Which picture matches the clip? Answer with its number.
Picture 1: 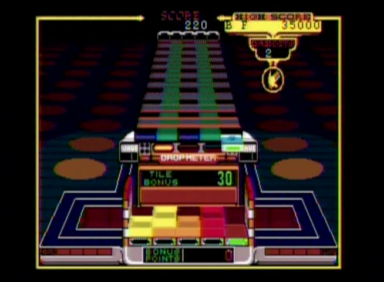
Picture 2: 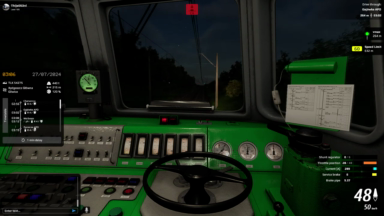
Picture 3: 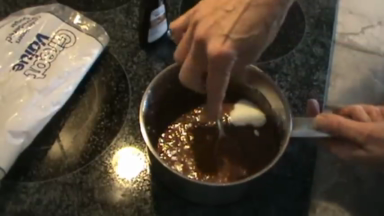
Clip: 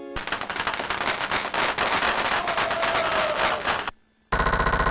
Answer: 1